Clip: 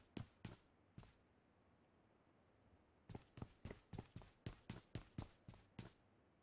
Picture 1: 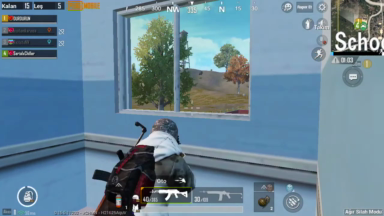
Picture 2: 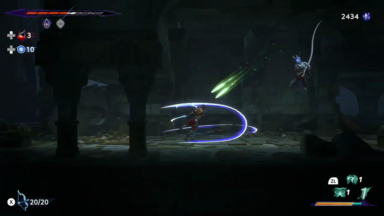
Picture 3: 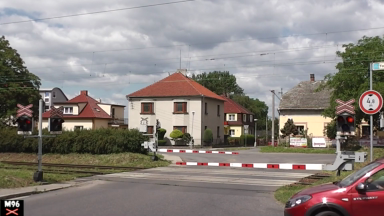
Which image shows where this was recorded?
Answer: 1